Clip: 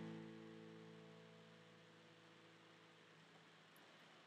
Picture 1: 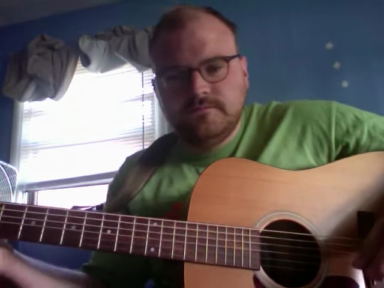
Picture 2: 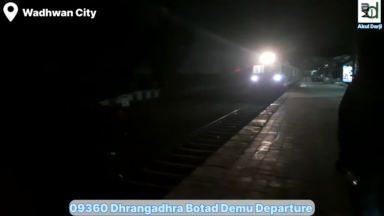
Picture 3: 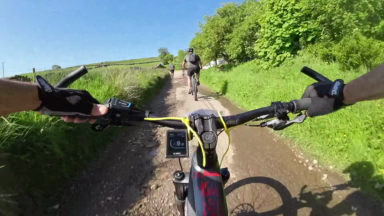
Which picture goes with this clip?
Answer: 1